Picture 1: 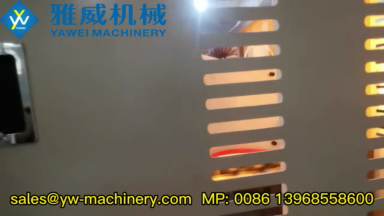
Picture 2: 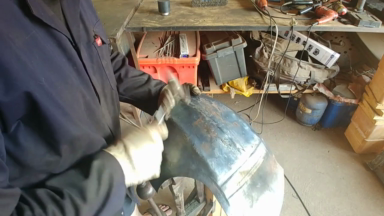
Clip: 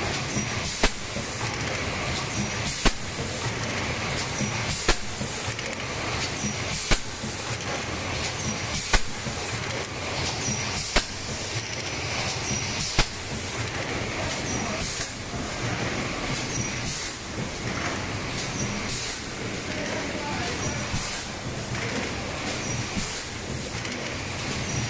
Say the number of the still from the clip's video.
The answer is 1